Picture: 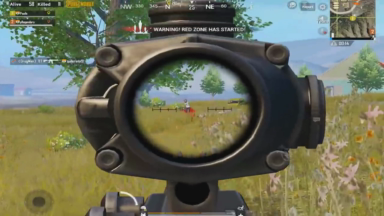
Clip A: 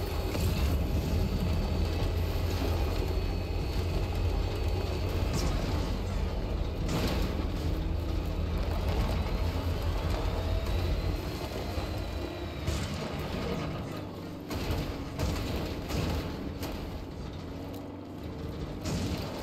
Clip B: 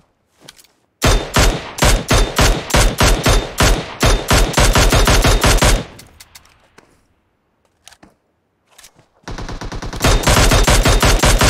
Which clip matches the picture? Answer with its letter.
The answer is B